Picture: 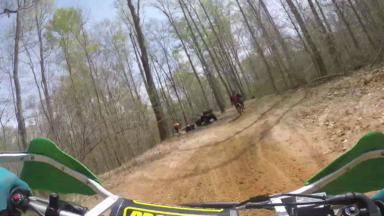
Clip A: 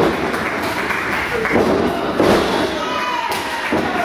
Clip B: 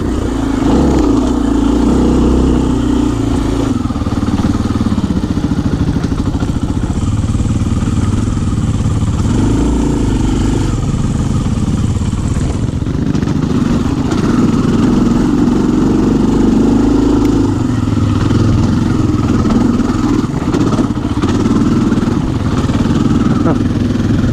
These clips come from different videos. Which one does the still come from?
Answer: B